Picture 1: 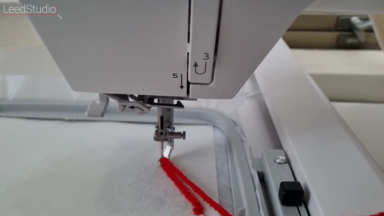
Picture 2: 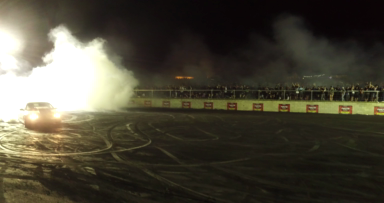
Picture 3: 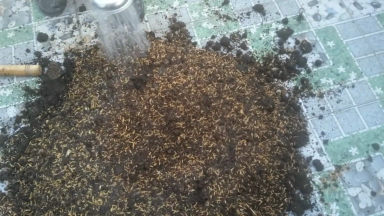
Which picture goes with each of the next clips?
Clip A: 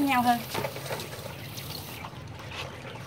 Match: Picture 3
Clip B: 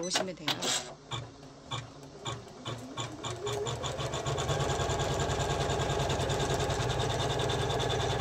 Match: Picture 1